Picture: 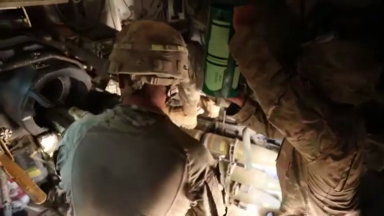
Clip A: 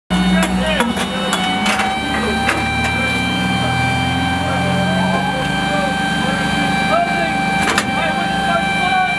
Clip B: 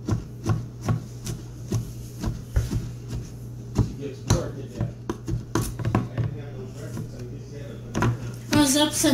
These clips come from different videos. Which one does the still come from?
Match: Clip A